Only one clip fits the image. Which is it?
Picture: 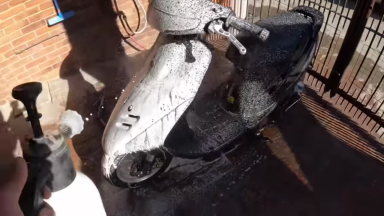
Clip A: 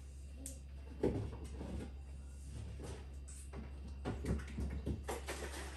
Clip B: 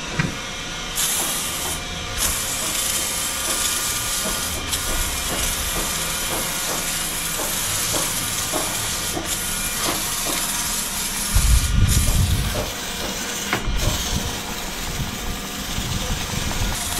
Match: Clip B